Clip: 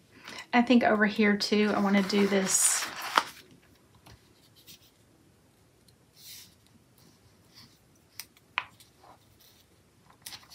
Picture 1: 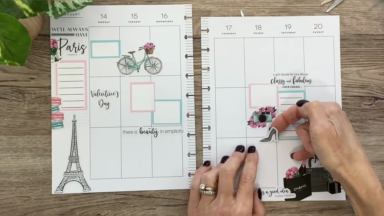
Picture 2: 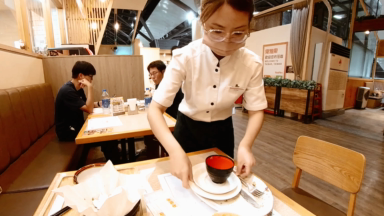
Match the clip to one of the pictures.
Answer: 1